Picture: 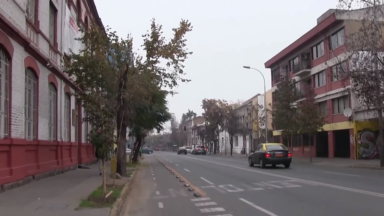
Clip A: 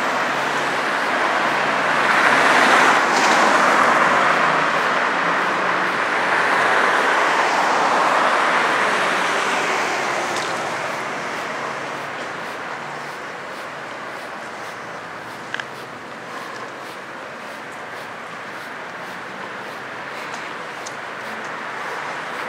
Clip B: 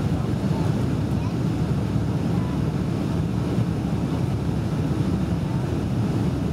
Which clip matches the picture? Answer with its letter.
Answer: A